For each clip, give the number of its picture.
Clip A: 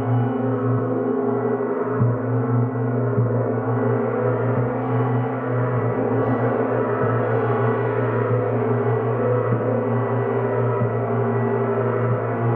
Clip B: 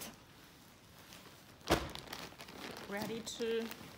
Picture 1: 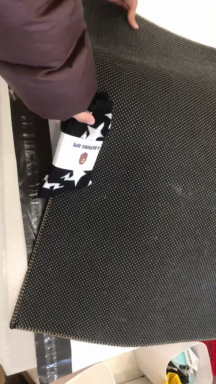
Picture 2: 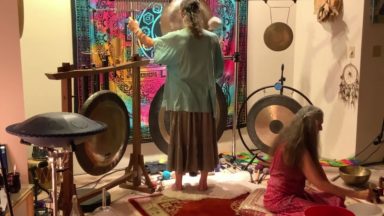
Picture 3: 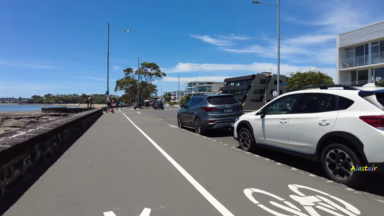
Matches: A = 2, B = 1